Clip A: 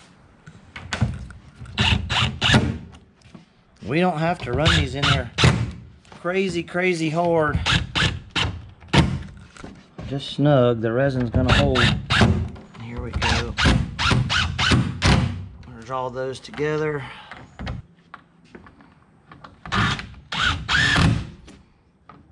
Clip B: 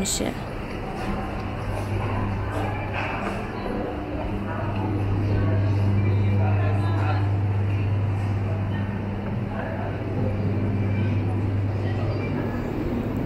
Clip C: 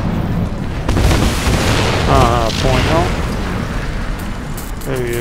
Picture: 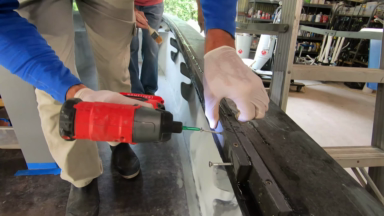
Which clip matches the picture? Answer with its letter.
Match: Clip A